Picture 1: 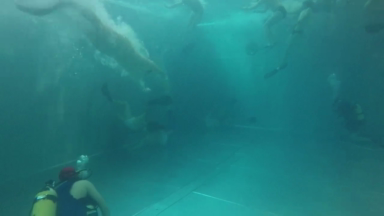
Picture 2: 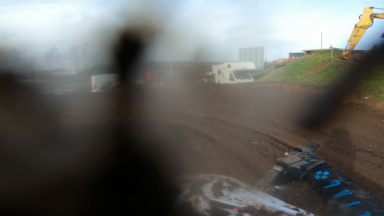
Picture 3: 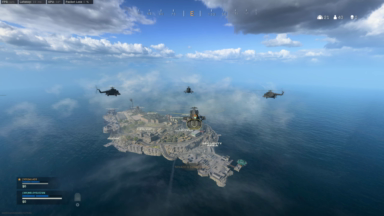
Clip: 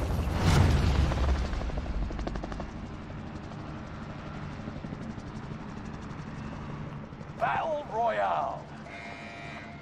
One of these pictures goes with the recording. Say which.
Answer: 3